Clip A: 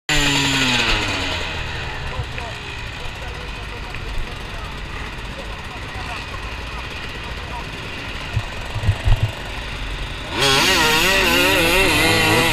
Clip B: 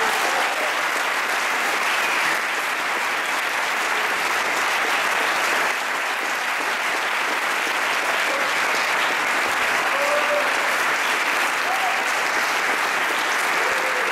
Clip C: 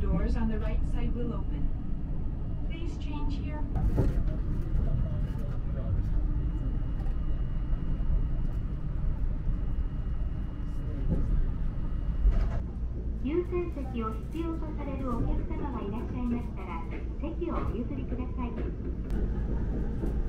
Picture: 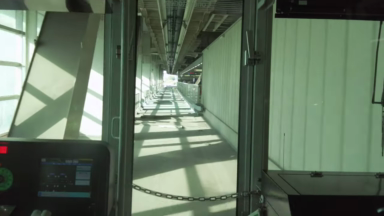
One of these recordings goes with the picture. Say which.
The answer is C